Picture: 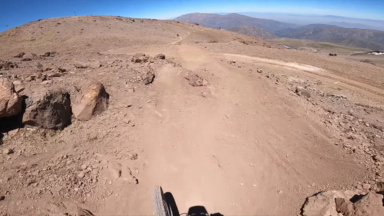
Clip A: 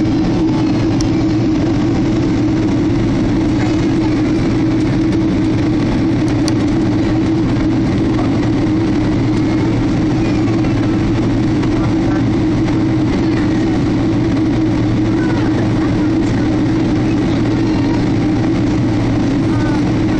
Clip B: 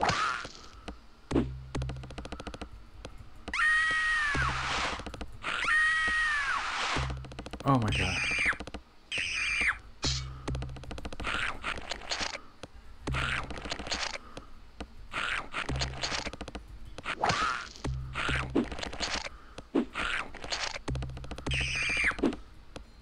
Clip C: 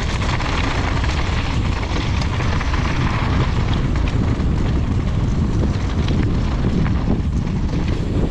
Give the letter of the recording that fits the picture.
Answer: C